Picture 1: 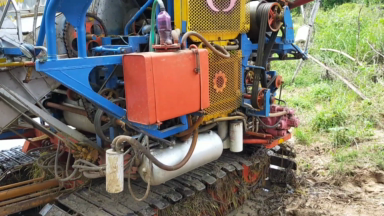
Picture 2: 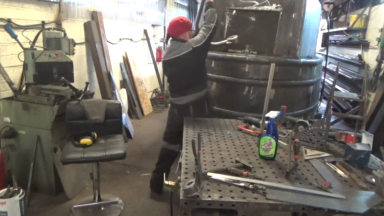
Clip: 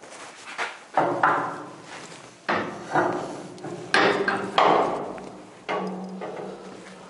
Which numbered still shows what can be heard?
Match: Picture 2